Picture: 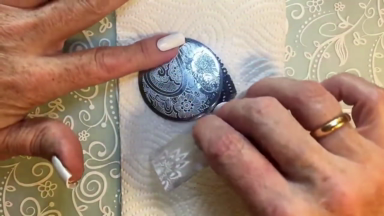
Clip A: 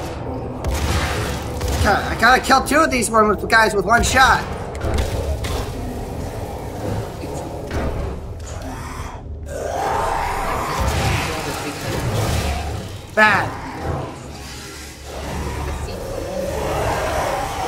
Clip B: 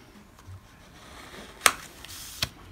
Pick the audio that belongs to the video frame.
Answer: B